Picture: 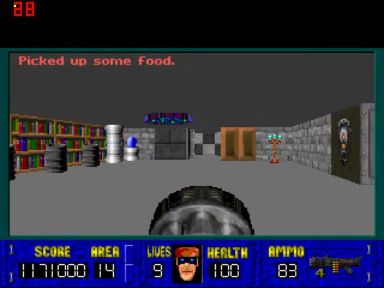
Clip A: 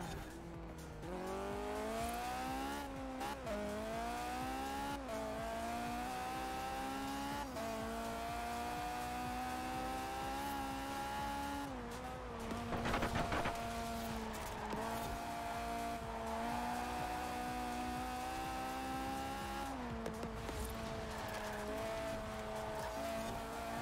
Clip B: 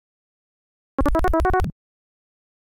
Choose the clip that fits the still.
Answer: B